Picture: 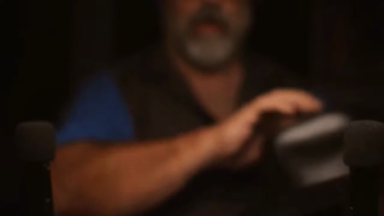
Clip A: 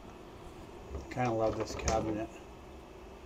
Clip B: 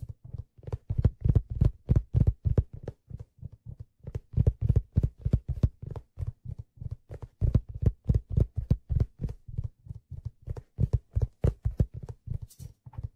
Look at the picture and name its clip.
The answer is B